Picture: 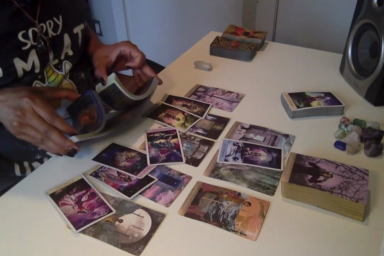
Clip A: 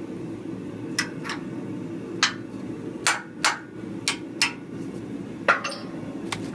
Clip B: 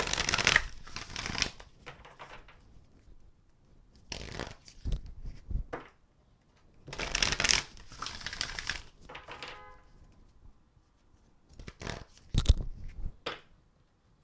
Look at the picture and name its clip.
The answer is B